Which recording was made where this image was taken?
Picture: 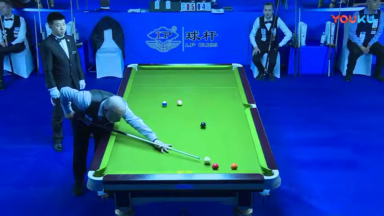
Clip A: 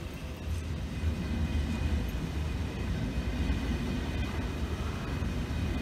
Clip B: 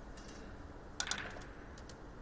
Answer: B